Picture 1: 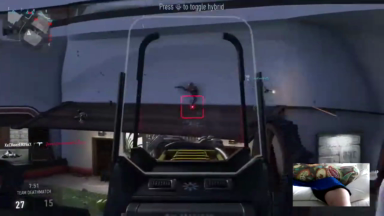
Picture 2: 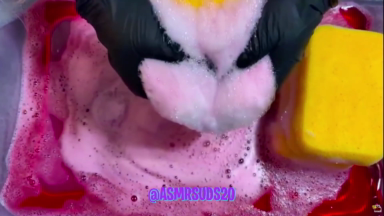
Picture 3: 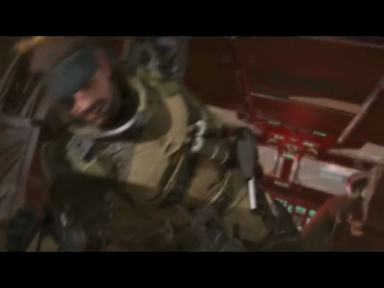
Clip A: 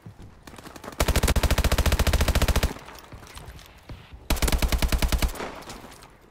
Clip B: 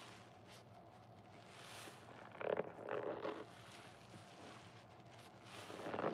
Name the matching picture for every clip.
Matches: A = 1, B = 2